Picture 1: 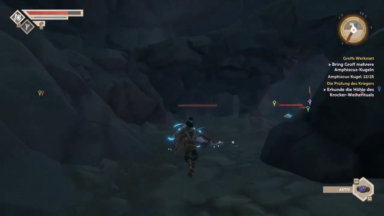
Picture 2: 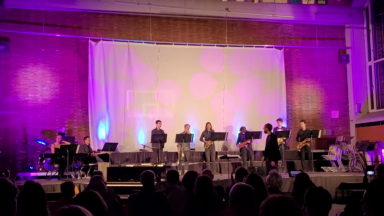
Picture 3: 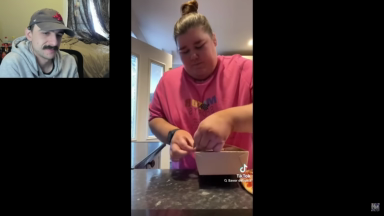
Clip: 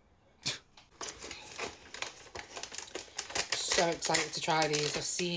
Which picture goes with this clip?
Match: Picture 3